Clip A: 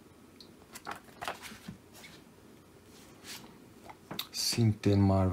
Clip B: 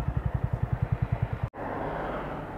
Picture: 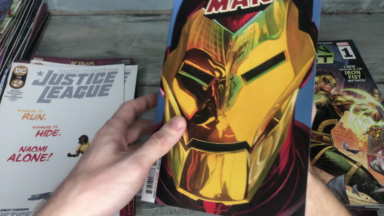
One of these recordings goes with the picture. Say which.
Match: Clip A